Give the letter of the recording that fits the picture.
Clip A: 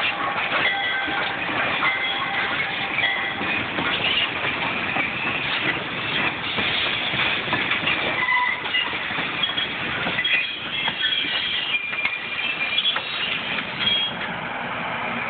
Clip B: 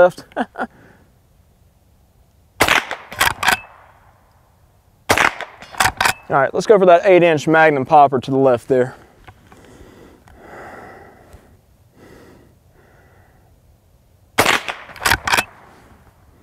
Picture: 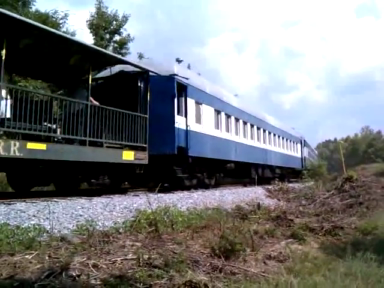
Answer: A